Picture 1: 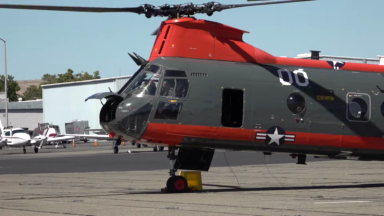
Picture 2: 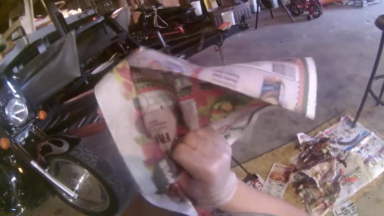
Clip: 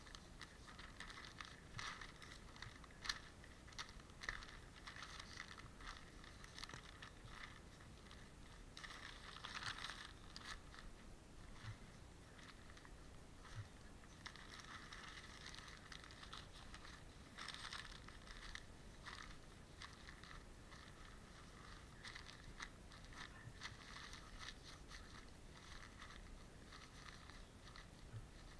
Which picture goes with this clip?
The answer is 2